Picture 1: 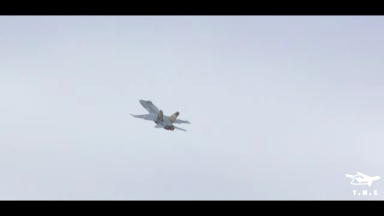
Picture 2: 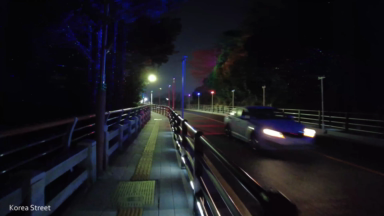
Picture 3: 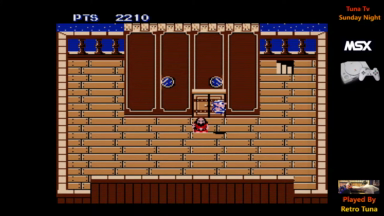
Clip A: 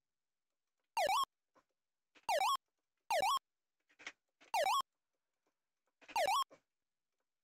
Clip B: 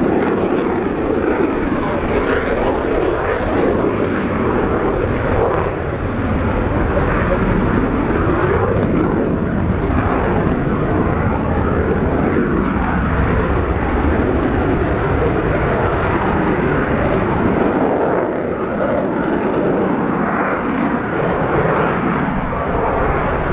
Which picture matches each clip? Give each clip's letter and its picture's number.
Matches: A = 3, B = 1